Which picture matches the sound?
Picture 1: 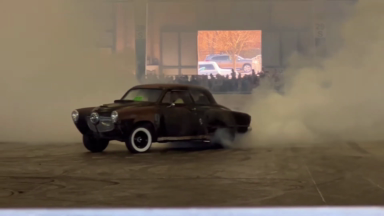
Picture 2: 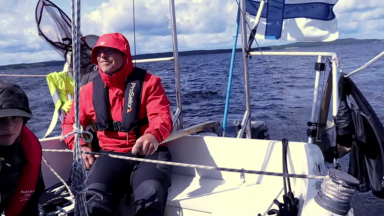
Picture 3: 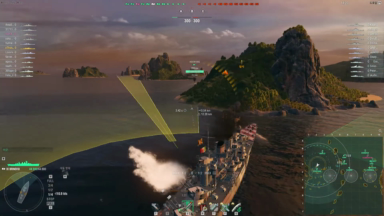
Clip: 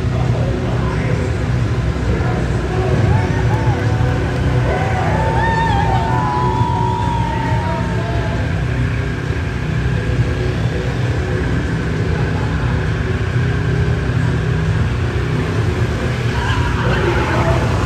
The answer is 1